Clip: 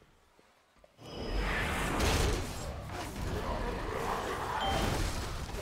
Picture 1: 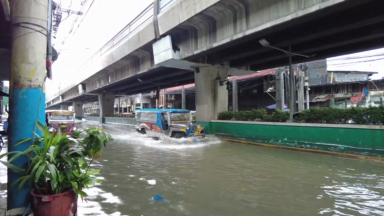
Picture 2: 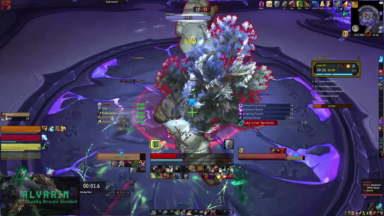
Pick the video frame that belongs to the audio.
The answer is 2